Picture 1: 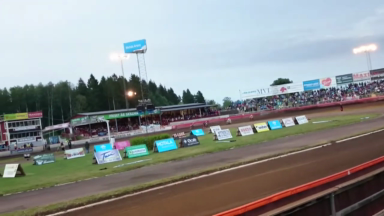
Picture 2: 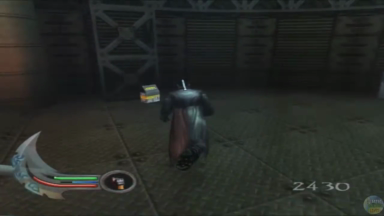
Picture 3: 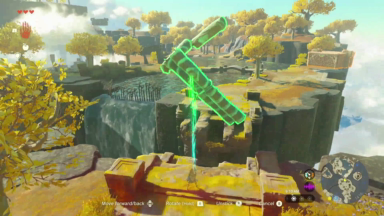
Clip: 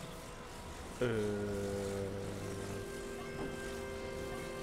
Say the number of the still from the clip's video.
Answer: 3